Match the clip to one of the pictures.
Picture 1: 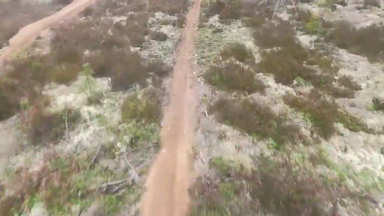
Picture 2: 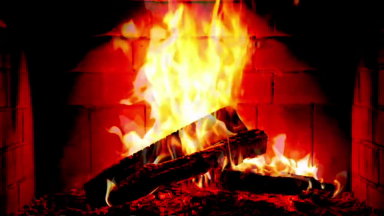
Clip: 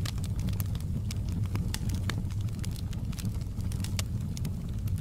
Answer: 2